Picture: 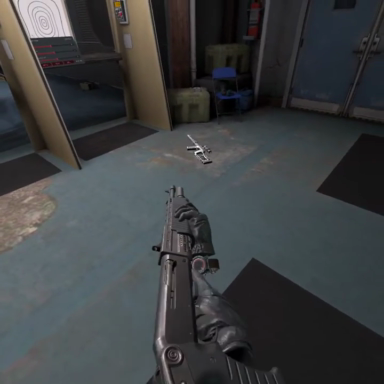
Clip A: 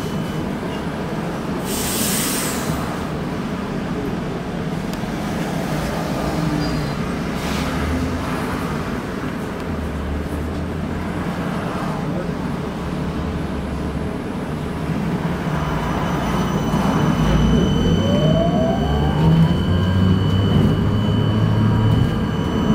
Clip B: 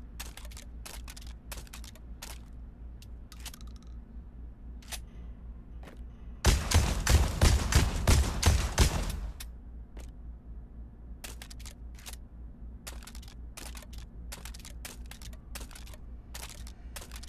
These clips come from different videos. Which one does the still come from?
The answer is B